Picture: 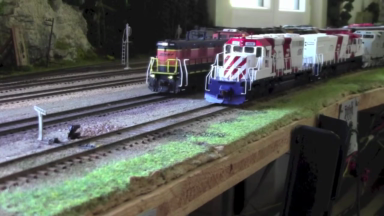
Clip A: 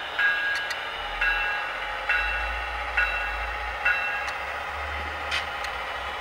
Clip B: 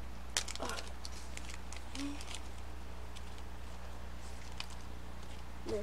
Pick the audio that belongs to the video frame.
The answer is A